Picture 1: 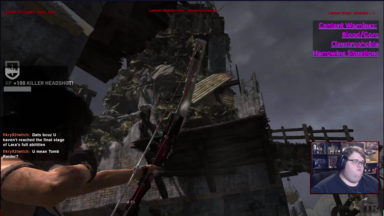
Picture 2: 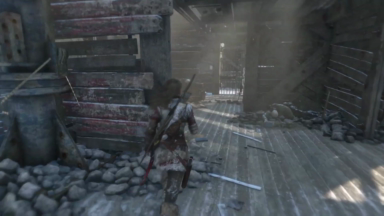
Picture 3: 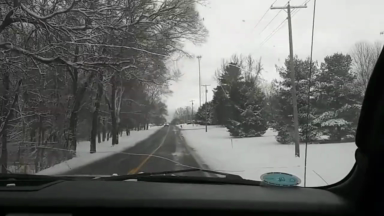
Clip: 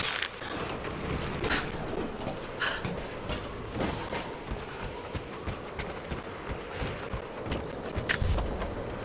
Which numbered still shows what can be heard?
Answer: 2